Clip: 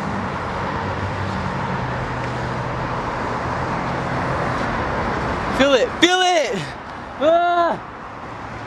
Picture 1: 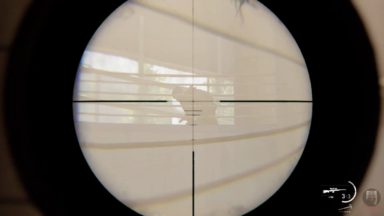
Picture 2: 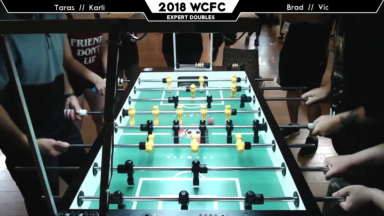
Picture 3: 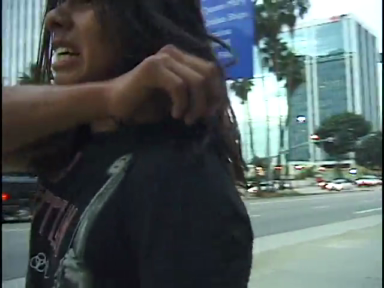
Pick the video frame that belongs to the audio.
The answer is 3